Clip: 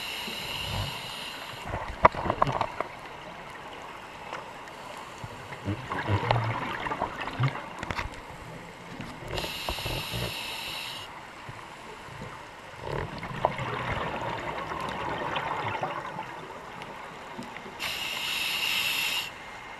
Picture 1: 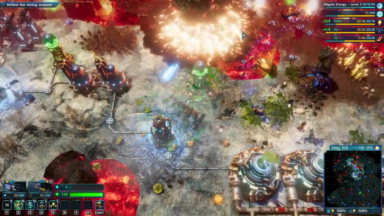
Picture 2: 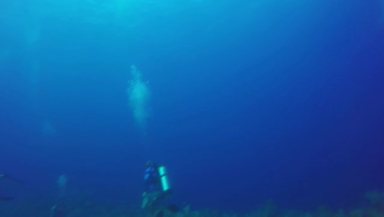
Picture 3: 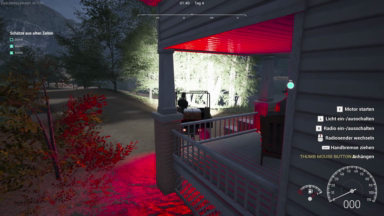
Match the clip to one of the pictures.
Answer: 2